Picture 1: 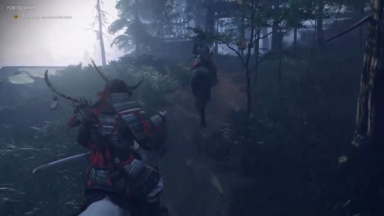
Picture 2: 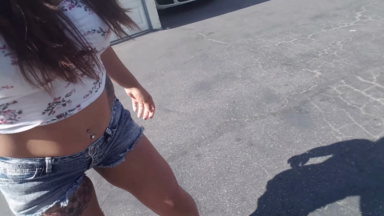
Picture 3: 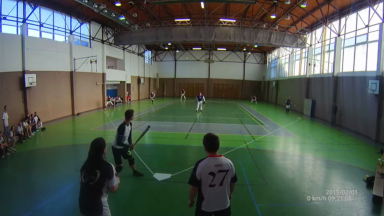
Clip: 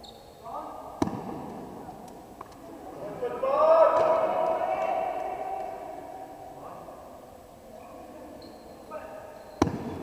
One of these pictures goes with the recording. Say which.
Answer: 3